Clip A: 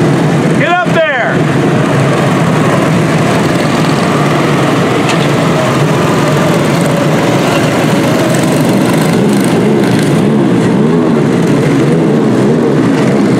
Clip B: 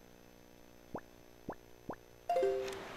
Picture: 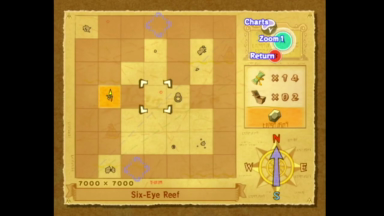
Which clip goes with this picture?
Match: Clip B